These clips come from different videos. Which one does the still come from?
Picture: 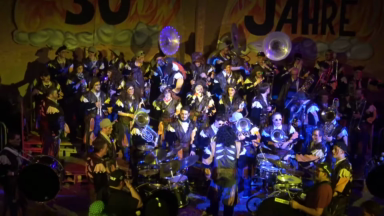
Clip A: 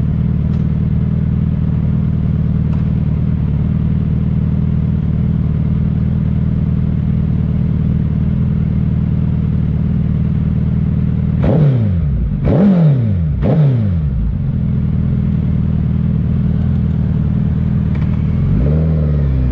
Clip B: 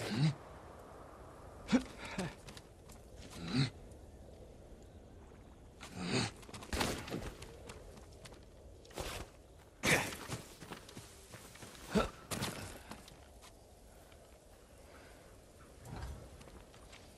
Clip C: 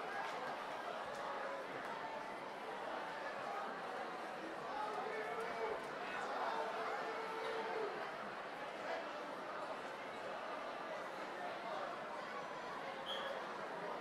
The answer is C